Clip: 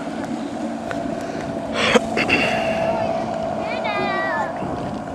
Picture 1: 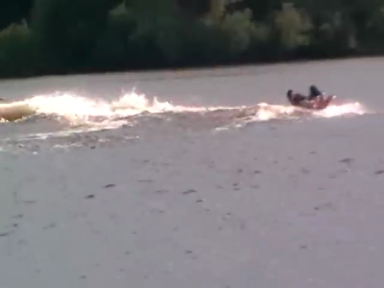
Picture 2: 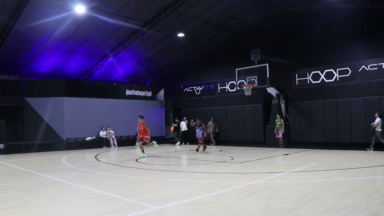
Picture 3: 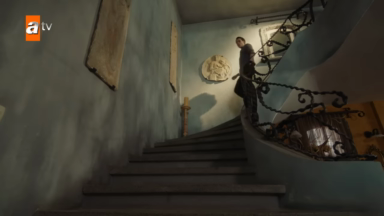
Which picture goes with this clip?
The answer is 1